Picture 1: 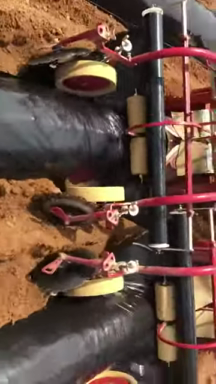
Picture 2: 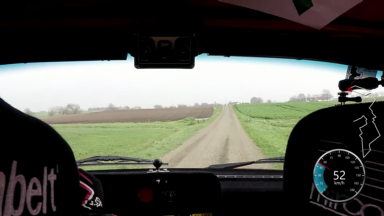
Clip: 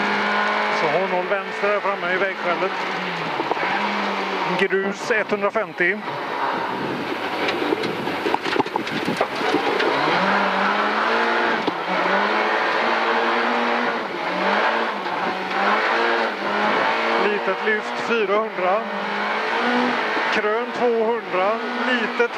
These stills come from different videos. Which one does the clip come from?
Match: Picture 2